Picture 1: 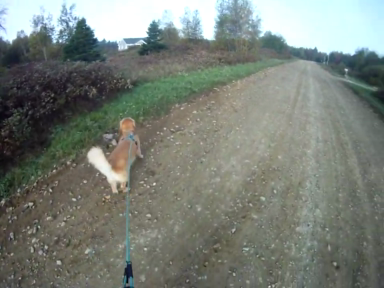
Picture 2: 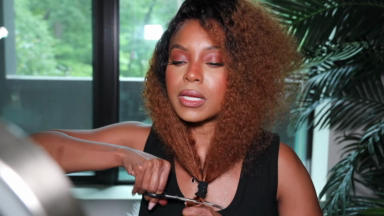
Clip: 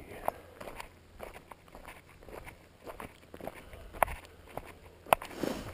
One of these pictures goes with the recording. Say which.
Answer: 1